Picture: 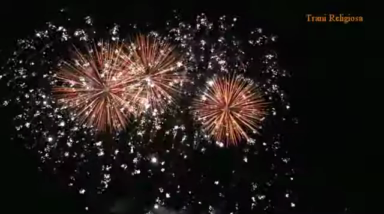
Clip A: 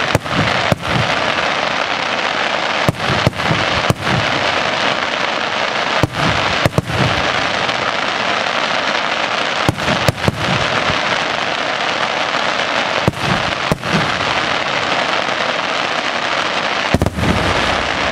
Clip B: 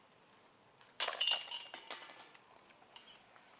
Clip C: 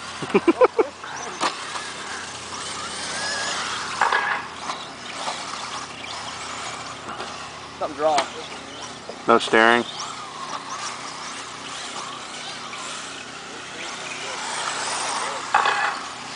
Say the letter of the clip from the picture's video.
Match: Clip A